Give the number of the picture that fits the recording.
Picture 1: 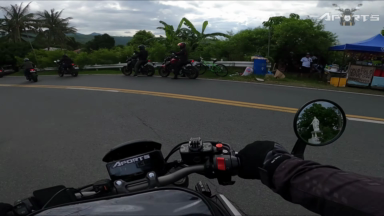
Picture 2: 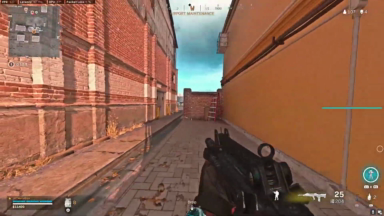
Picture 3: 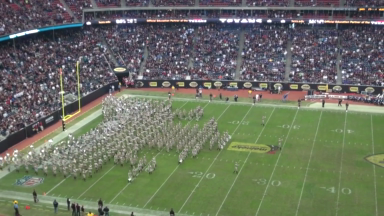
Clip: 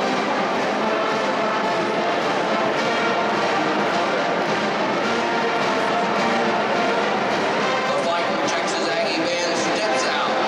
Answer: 3